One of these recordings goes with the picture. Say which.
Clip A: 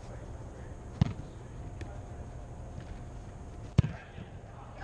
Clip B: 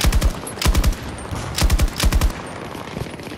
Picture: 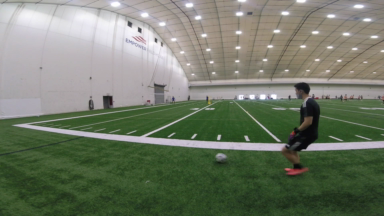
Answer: A